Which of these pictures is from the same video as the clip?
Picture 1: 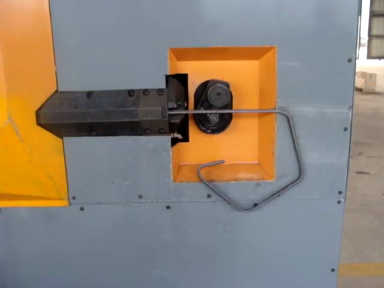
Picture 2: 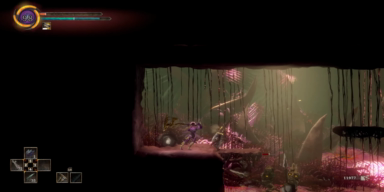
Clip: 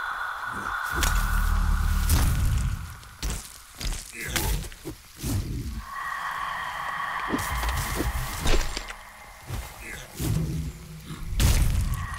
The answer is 2